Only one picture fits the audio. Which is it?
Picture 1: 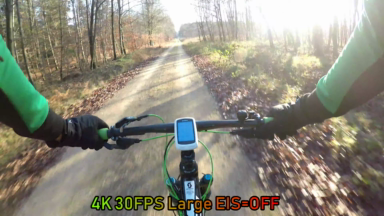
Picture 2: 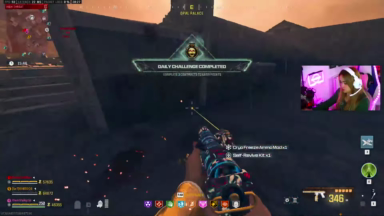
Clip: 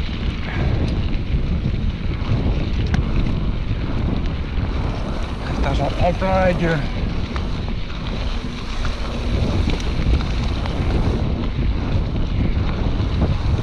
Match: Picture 1